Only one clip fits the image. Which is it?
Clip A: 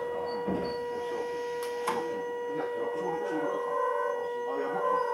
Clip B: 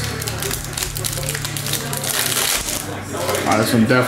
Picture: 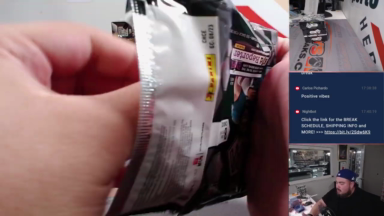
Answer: B